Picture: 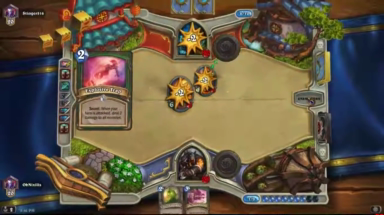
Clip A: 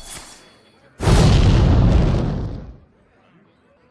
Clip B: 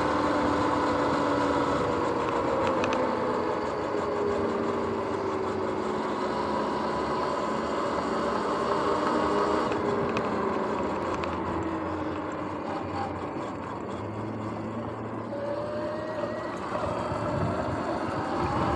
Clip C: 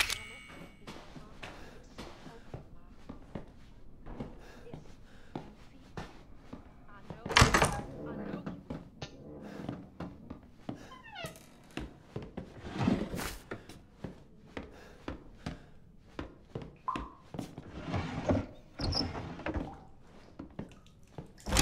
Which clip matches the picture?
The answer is A